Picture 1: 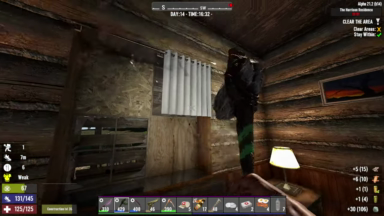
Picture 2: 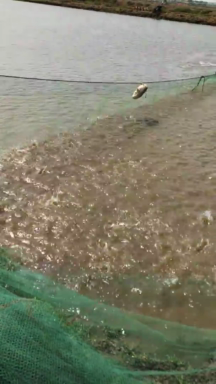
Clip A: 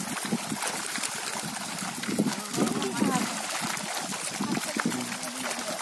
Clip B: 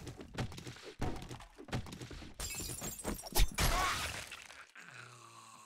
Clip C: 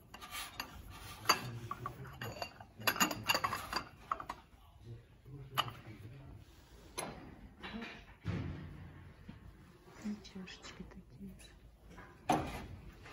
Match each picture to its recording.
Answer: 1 B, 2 A